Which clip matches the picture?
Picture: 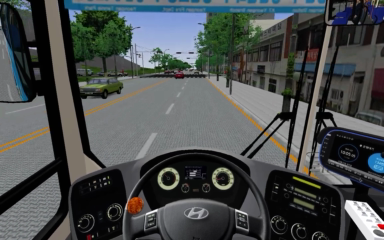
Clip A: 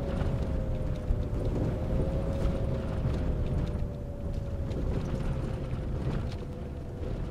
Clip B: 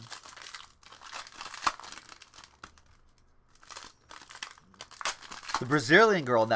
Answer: A